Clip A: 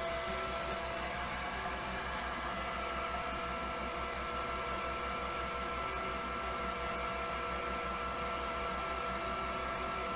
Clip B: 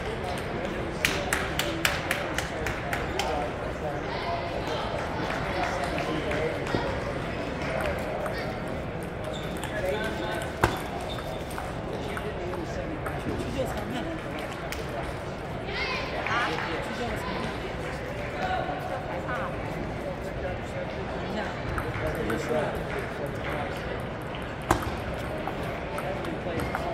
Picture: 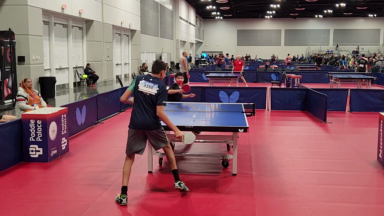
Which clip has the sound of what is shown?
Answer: B